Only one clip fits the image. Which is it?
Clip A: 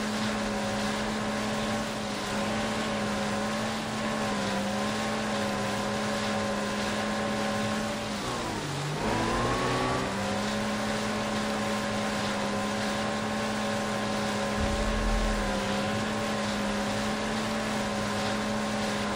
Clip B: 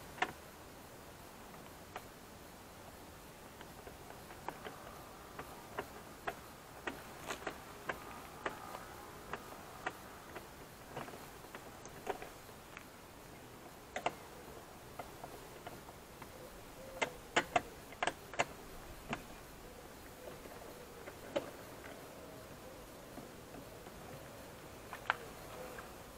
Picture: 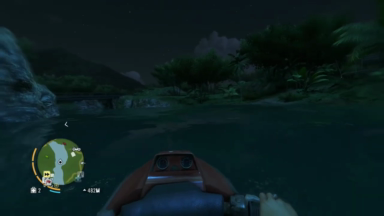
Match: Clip A